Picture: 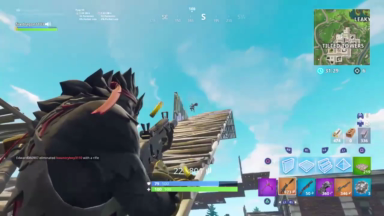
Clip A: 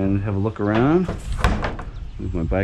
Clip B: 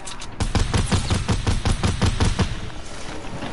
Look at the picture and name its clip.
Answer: B